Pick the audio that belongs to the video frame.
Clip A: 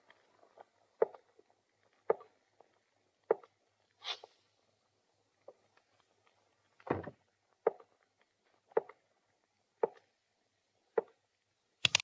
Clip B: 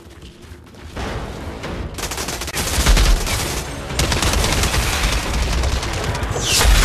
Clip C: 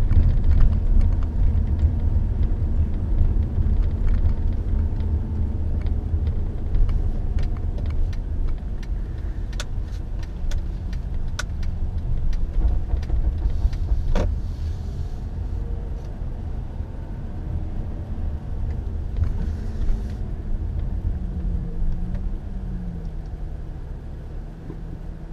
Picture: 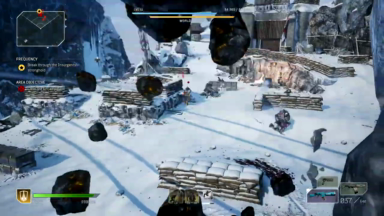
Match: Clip B